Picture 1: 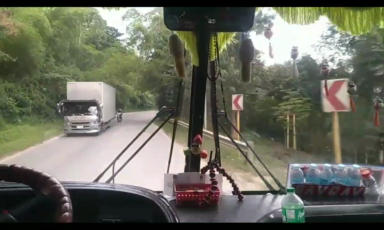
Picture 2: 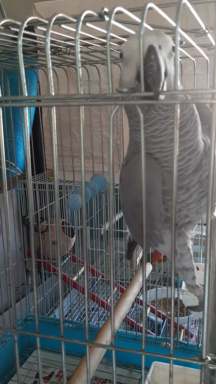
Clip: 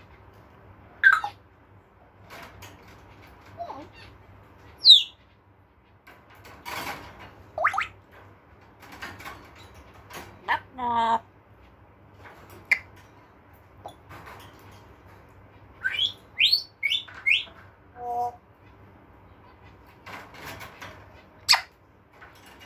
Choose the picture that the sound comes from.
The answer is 2